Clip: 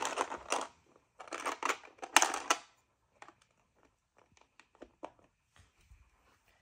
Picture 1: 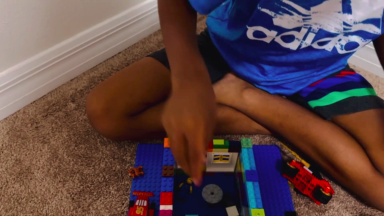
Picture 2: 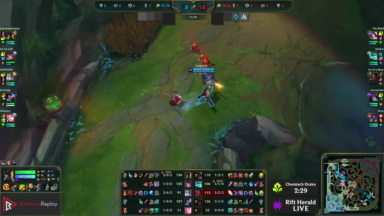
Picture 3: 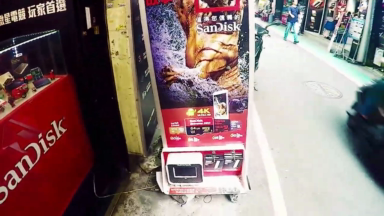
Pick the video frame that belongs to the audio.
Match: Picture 1